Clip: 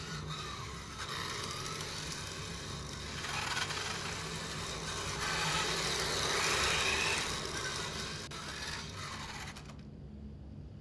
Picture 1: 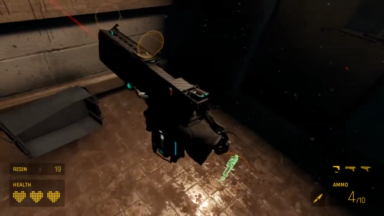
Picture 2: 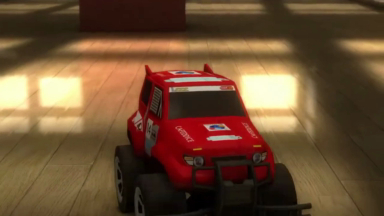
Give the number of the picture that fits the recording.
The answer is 2